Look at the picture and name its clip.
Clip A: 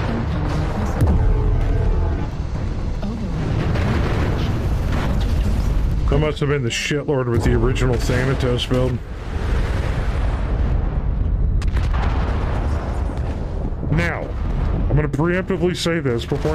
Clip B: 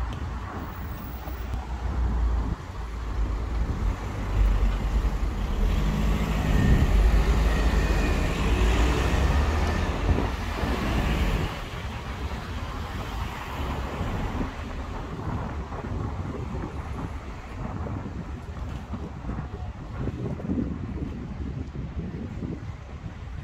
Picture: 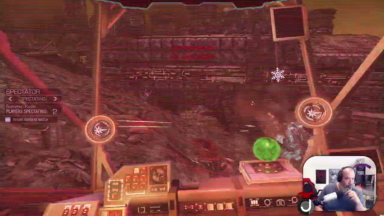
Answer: A